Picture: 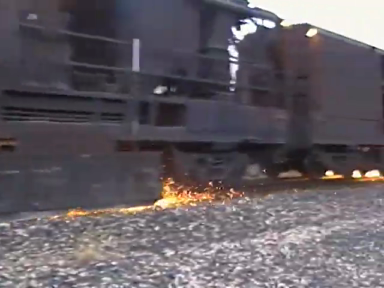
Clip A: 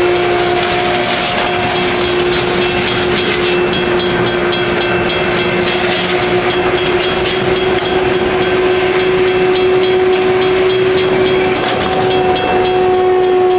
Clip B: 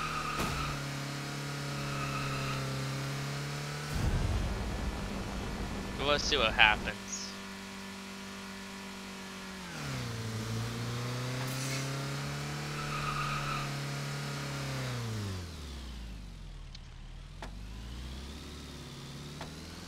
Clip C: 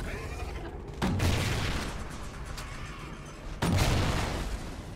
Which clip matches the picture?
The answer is A